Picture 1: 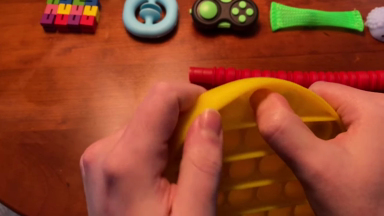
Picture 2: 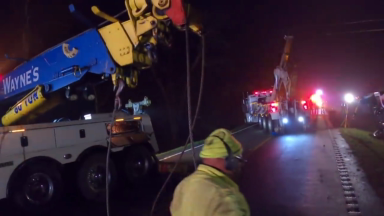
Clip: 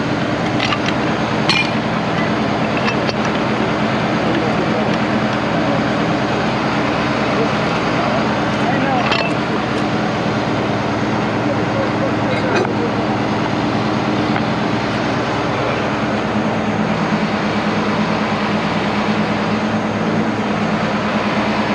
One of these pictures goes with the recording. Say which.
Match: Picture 2